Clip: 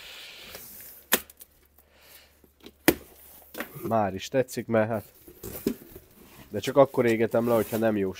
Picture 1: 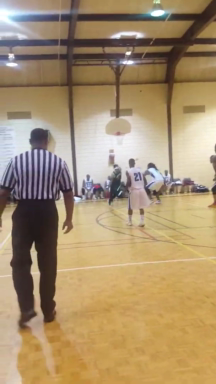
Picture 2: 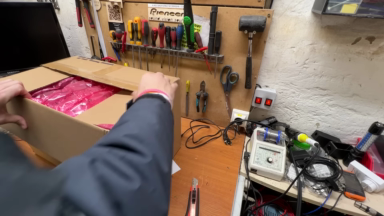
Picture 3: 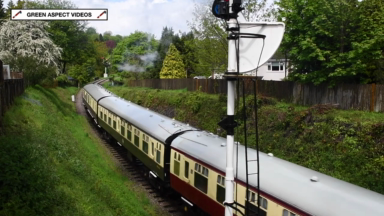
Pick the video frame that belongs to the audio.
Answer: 2